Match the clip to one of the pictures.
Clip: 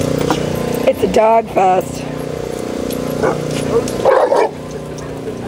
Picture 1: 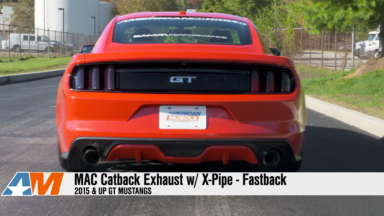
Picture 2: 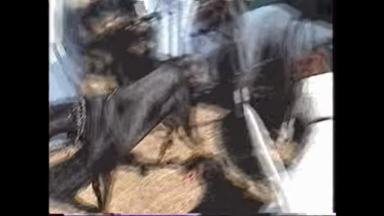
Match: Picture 2